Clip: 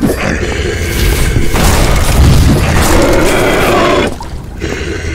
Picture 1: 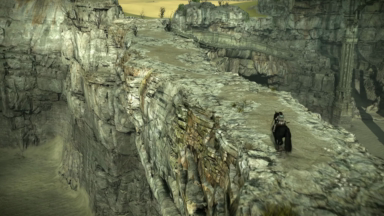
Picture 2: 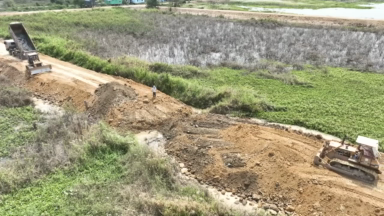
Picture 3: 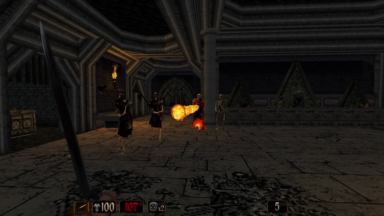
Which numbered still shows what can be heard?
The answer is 3